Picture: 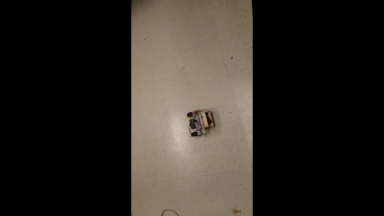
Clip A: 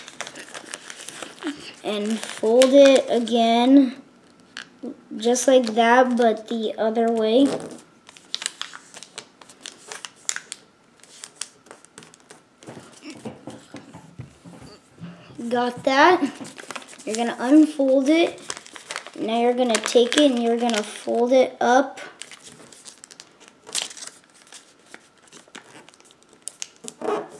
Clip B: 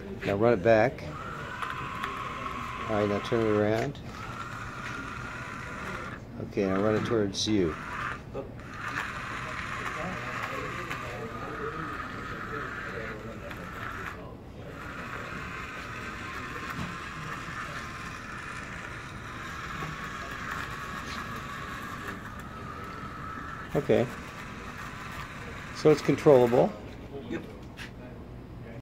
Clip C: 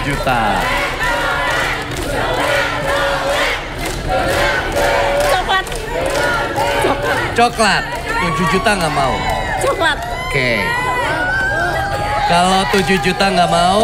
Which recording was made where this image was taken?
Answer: B